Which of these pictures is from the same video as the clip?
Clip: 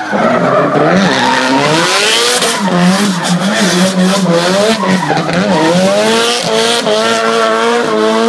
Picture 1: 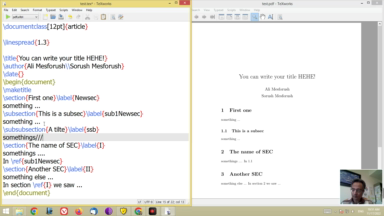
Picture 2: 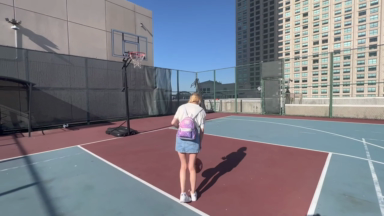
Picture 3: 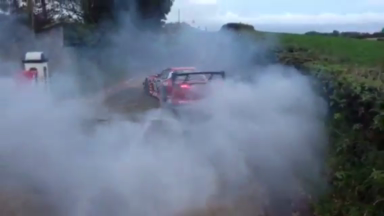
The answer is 3